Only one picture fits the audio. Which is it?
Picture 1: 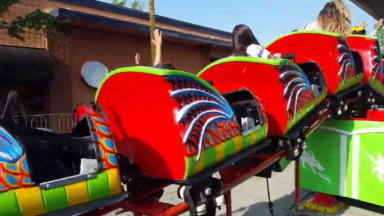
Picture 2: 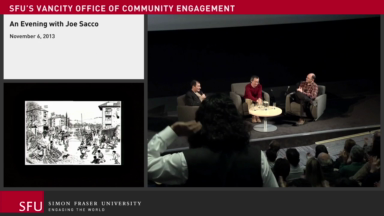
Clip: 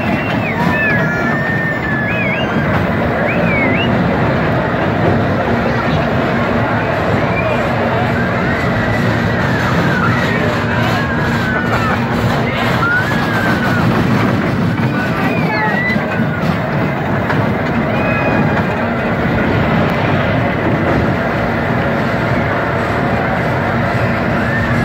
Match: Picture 1